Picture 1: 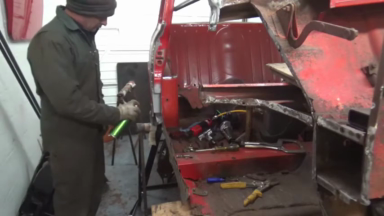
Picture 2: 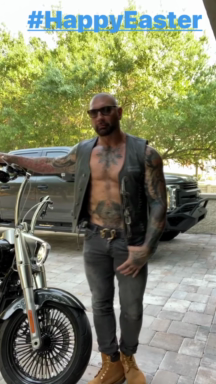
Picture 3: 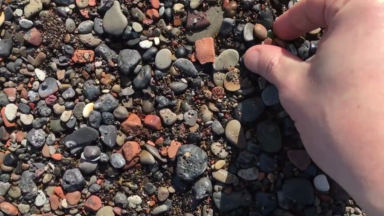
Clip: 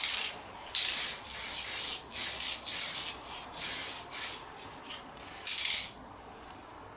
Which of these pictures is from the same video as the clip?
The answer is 1